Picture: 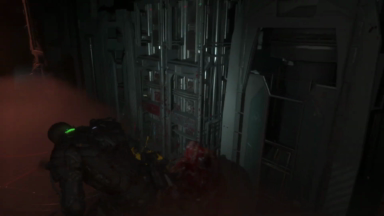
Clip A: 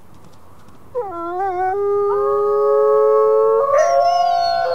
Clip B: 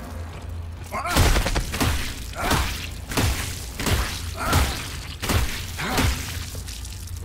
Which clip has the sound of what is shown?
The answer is B